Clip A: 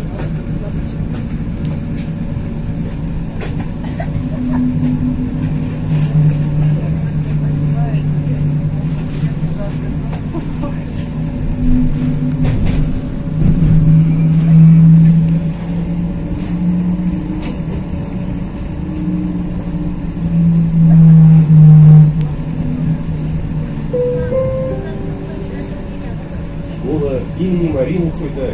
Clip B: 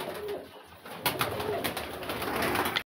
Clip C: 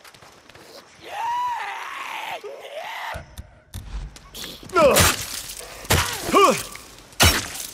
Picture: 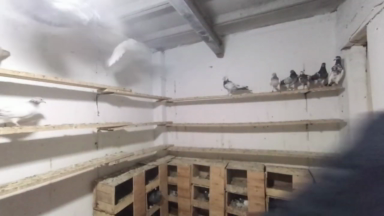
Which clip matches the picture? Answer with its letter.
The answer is B